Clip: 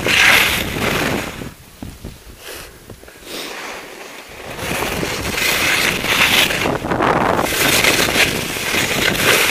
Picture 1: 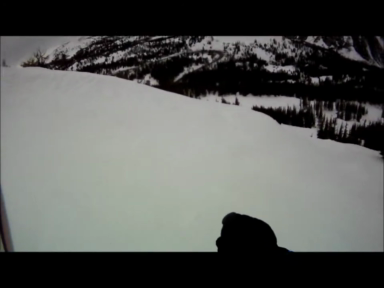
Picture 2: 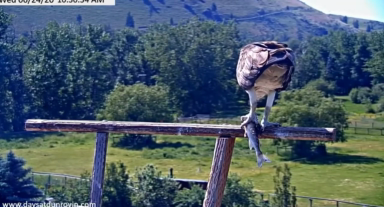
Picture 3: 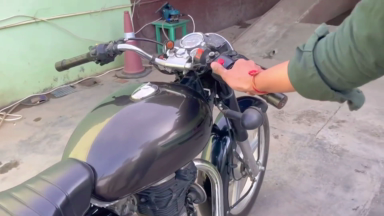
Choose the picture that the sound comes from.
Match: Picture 1